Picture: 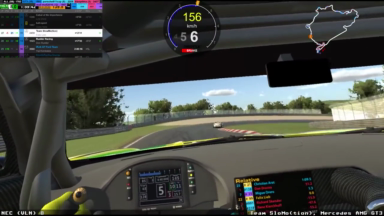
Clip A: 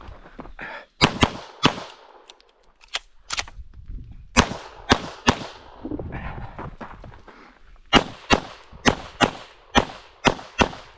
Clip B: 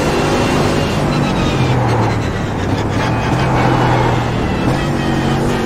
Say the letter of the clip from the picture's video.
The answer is B